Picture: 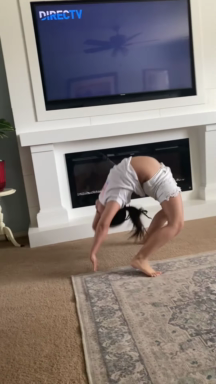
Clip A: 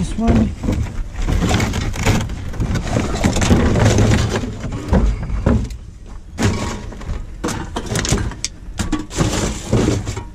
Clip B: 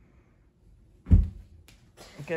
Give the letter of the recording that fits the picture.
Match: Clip B